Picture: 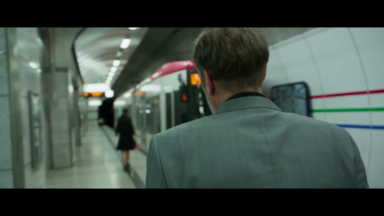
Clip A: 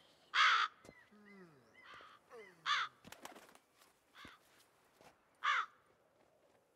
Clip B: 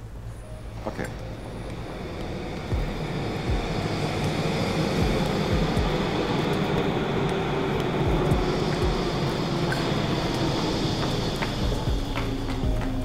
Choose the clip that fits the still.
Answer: B